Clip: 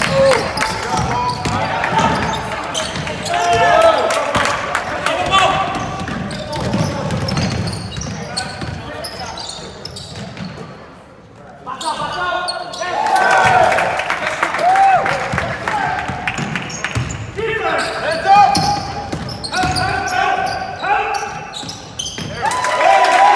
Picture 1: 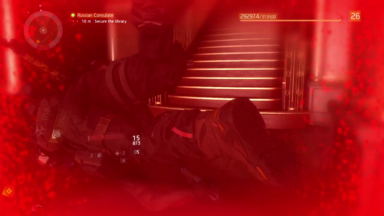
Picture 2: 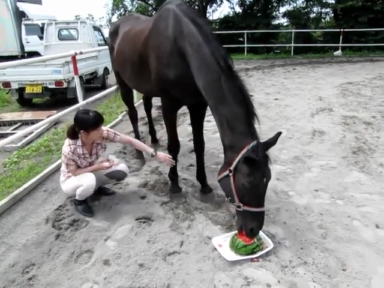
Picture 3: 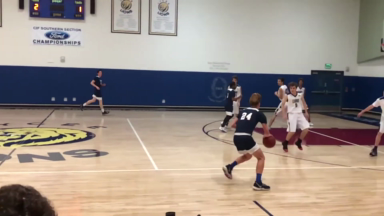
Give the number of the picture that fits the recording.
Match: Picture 3